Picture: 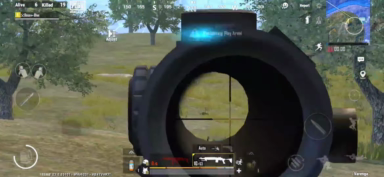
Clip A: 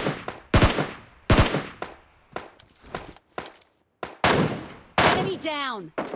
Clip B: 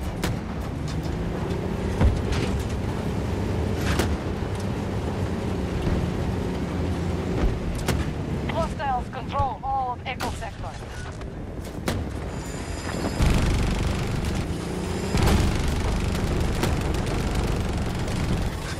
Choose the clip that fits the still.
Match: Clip A